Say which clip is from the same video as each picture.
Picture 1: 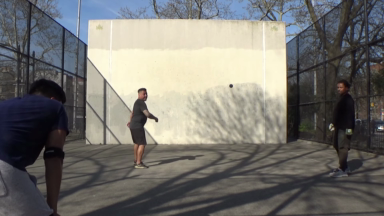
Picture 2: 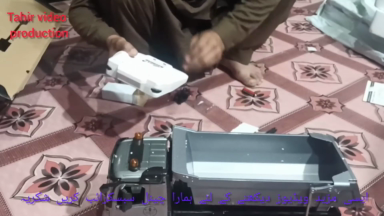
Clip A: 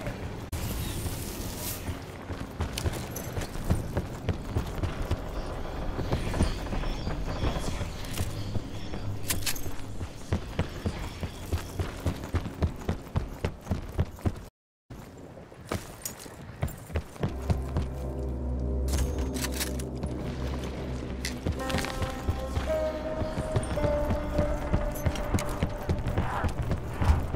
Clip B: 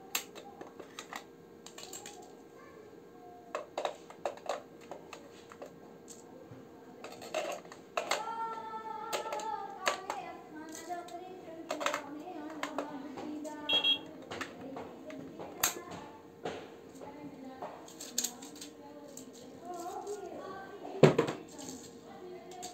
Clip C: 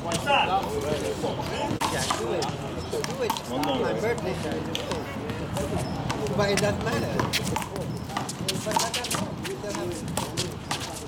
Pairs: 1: C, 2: B